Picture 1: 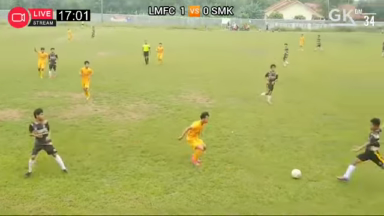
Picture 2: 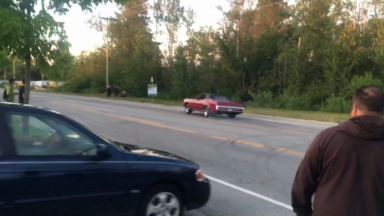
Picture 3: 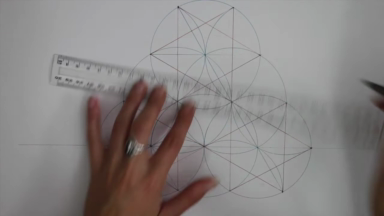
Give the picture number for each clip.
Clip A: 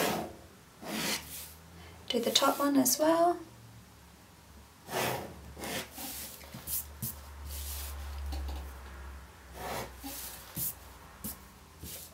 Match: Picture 3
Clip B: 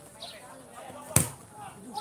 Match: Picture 1